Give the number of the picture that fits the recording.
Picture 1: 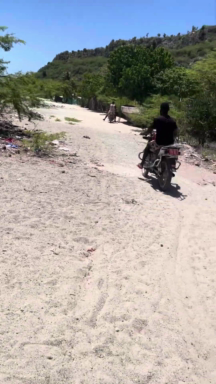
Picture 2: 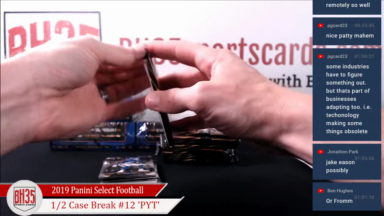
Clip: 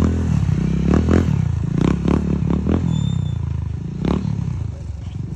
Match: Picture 1